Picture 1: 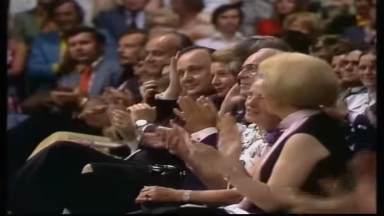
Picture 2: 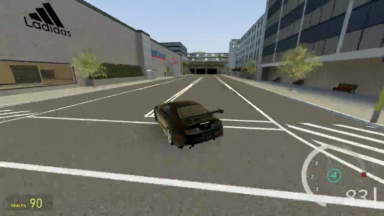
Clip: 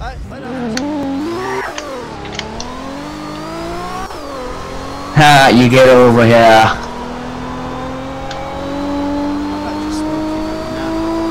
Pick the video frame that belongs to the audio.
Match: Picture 2